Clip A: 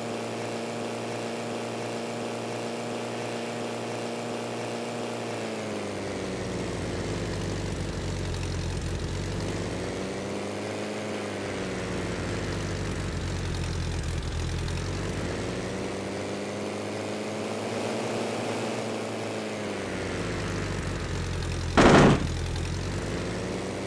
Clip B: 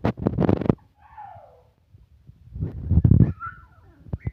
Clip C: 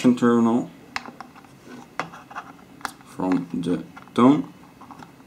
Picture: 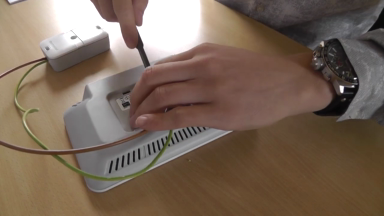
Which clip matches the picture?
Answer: C